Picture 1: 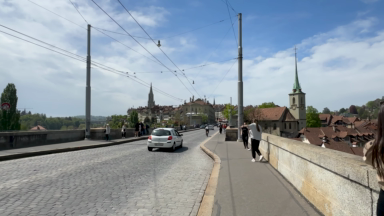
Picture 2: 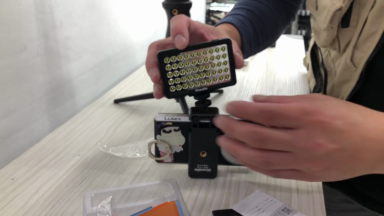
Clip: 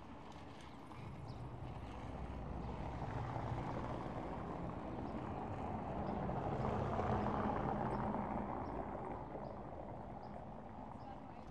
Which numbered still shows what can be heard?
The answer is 1